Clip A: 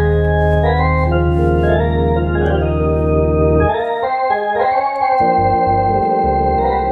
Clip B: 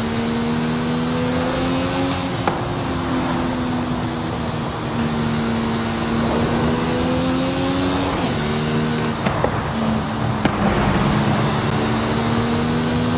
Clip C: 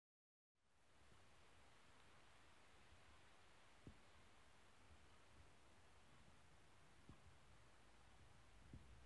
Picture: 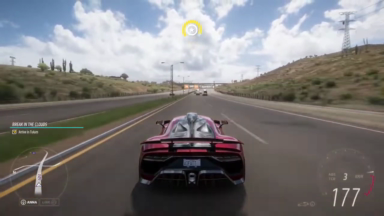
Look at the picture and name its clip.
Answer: B